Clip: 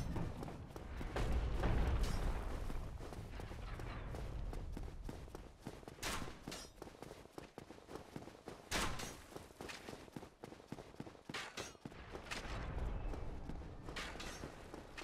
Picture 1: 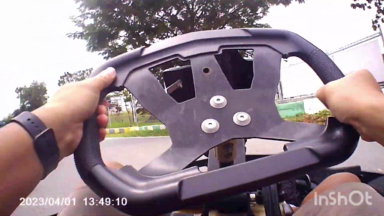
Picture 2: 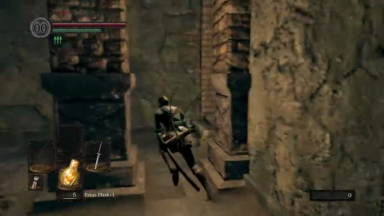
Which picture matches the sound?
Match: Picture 2